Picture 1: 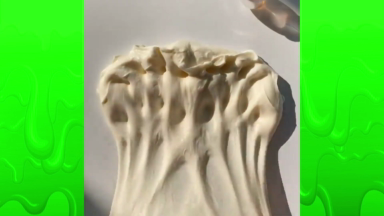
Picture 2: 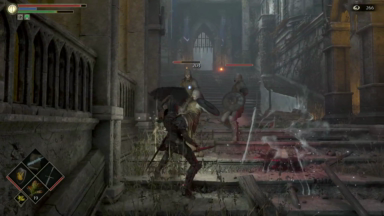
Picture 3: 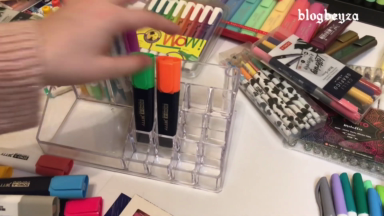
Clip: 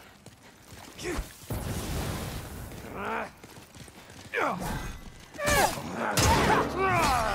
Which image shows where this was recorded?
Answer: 2